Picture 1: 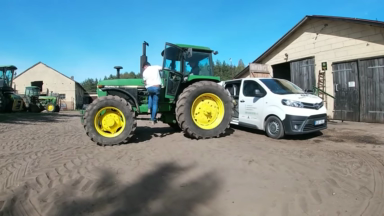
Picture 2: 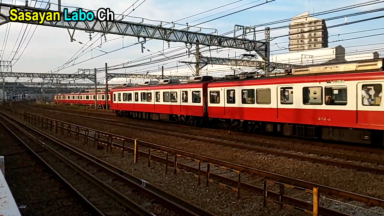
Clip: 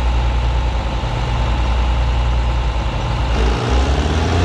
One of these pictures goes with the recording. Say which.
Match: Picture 1